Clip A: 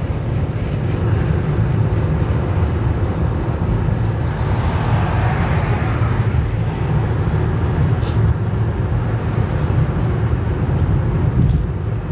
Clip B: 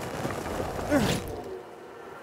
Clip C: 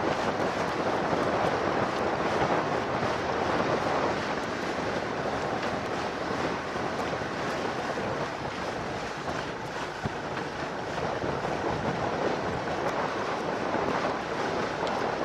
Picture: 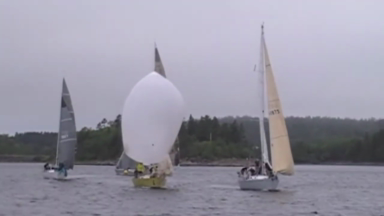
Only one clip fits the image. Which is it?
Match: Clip C